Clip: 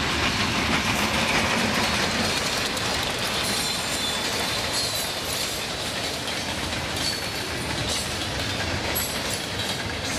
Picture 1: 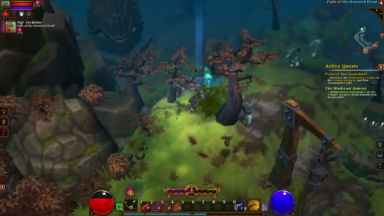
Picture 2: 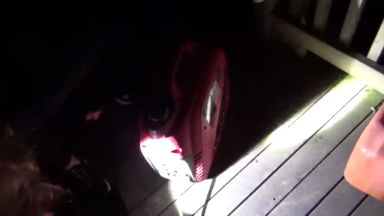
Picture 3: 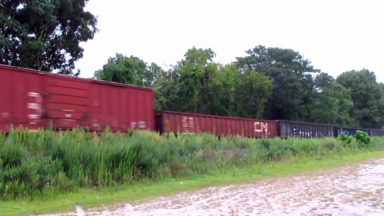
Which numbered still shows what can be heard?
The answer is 3